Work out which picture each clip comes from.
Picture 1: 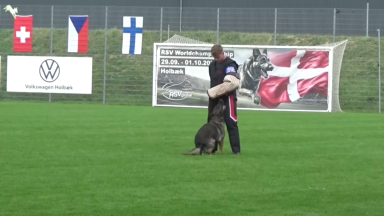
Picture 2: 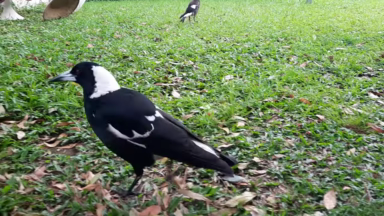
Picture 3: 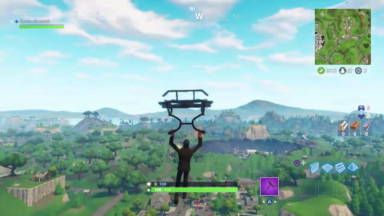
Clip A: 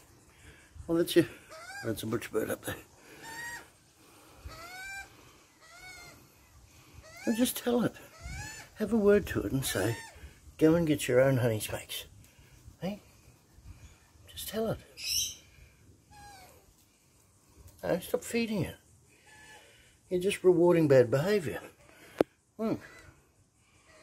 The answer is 2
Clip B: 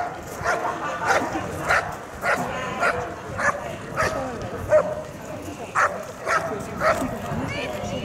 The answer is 1